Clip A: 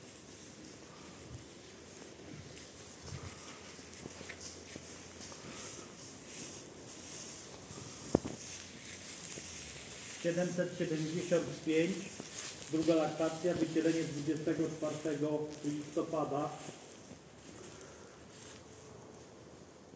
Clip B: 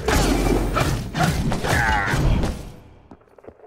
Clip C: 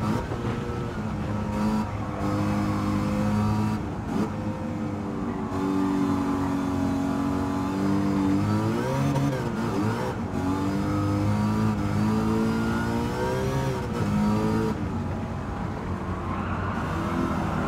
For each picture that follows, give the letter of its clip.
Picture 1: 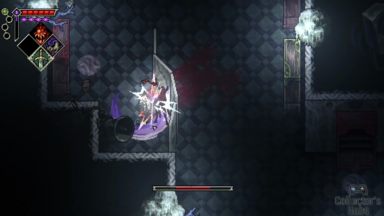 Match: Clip B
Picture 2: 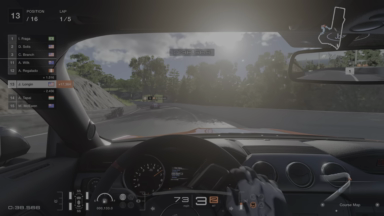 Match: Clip C